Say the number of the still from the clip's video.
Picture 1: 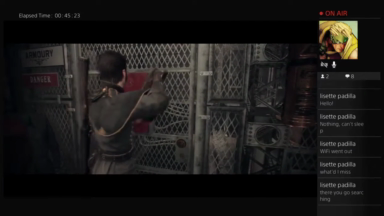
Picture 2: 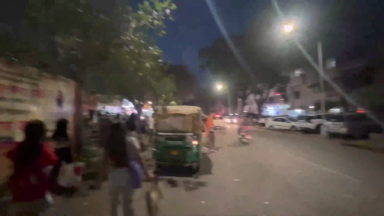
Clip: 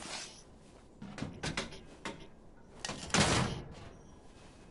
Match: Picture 1